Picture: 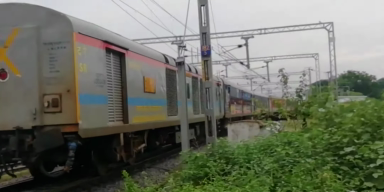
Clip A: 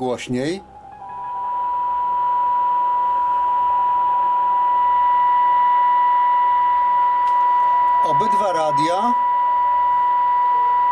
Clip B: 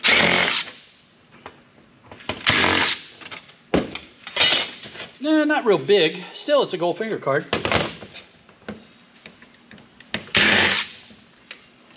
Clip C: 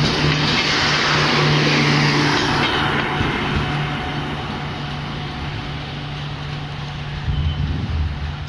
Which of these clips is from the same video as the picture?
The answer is C